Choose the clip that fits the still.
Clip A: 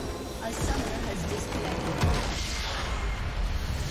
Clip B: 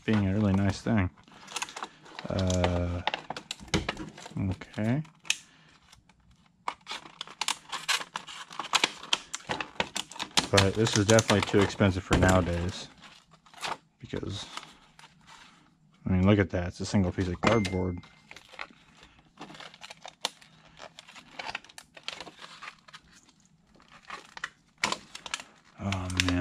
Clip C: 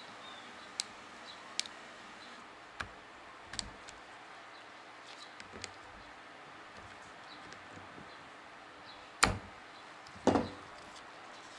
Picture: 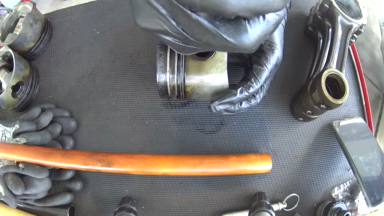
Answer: C